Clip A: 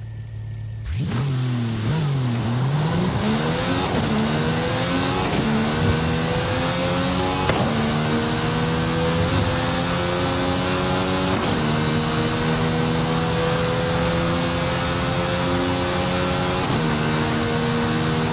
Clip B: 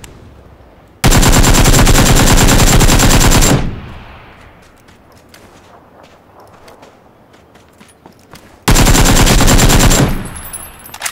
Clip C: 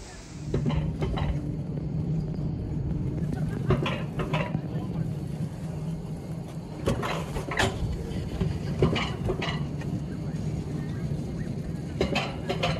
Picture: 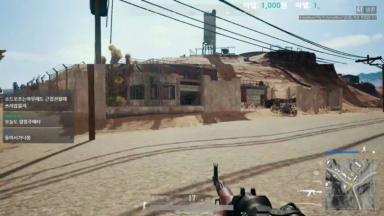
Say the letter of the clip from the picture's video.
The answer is B